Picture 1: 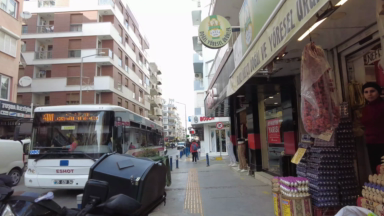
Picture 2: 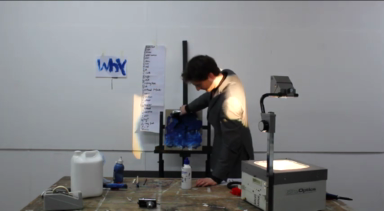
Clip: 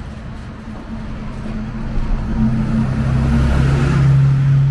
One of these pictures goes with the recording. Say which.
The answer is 1